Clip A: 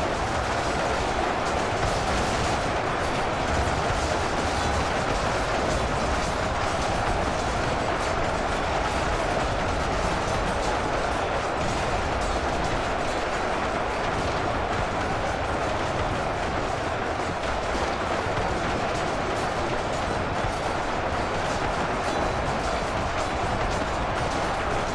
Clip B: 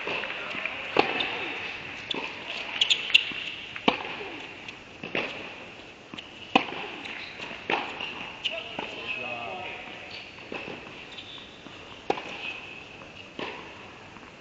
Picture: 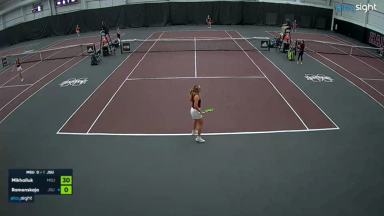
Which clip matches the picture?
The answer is B